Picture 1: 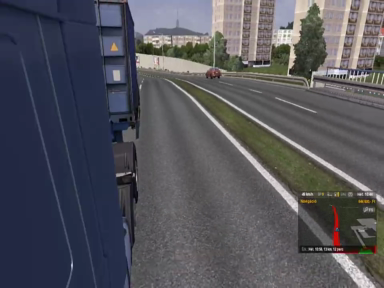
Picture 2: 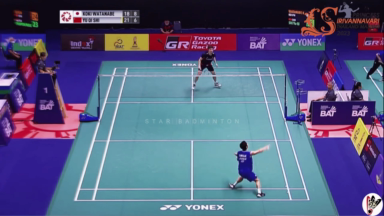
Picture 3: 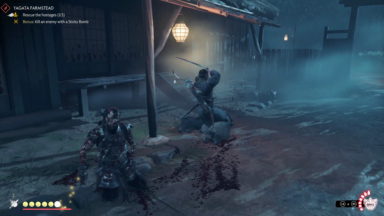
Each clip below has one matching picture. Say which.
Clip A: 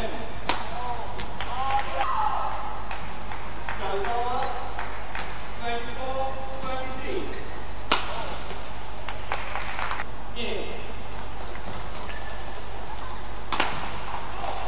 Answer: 2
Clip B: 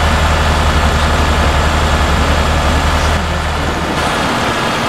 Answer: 1